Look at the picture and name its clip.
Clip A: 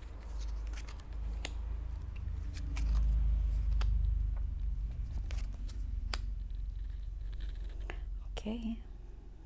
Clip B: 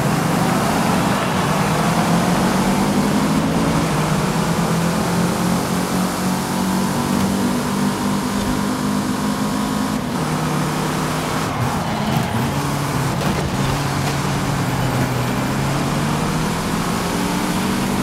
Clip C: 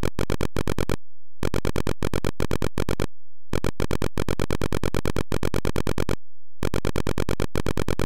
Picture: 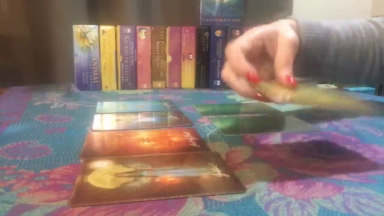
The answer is A